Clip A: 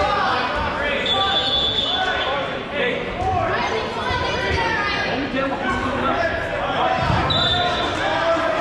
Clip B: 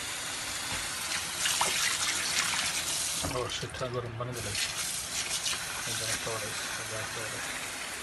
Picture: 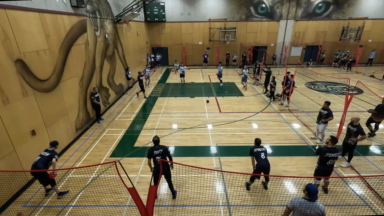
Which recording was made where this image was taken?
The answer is A